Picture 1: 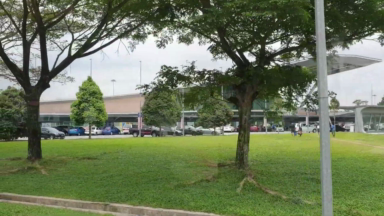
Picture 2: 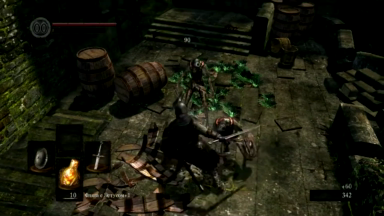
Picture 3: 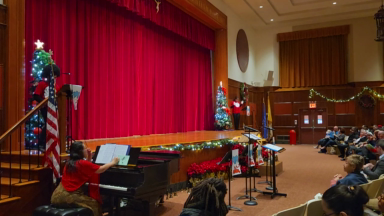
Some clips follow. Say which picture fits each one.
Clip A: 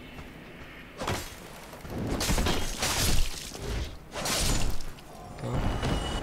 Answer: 2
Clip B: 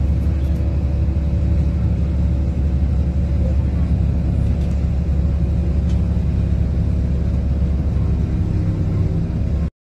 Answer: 1